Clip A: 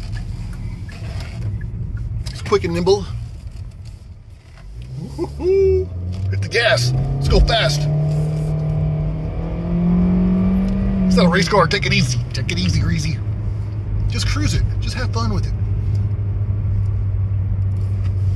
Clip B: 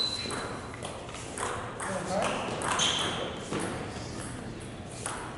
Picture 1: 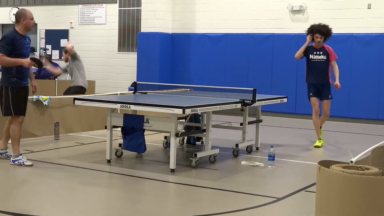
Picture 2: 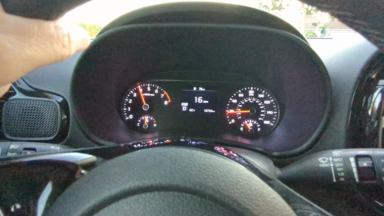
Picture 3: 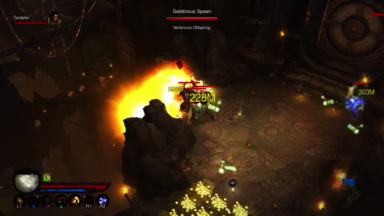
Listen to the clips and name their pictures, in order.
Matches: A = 2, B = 1